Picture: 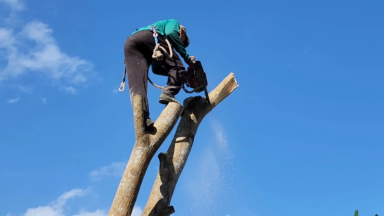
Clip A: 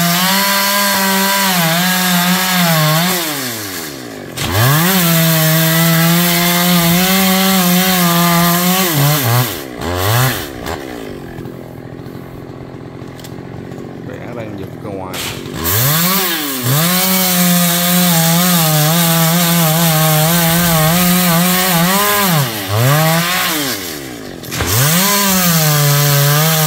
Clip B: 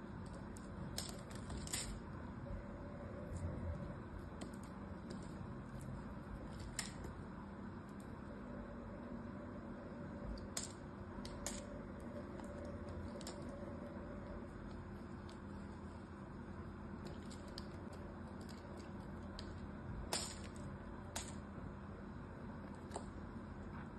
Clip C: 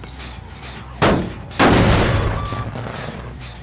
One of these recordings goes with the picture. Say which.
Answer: A